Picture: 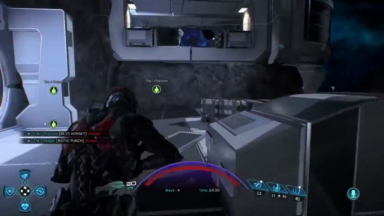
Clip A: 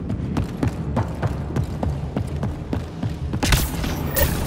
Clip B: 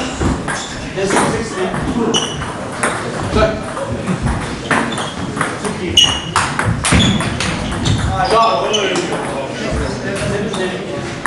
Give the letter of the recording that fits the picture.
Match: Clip A